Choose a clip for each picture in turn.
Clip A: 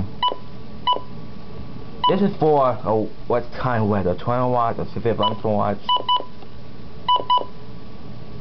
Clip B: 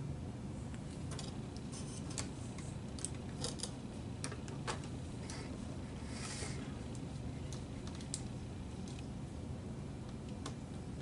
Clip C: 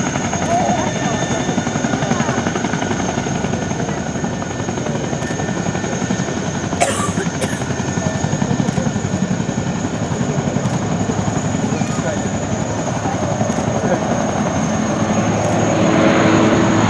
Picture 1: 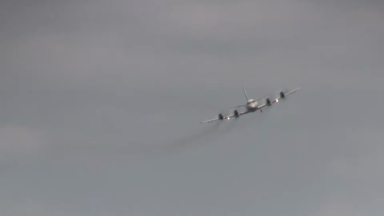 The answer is C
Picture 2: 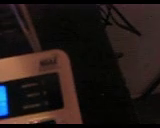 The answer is A